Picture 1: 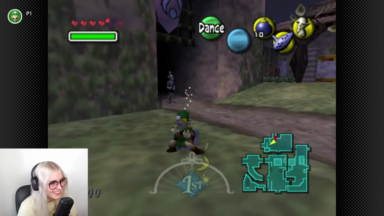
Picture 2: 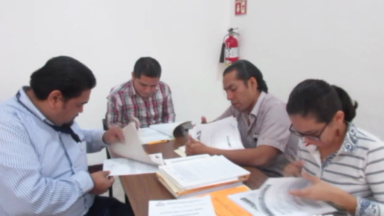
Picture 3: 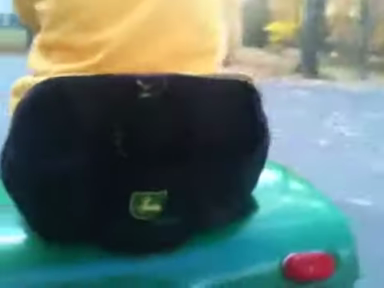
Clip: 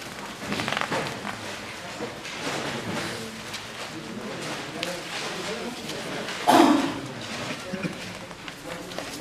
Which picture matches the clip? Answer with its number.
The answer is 2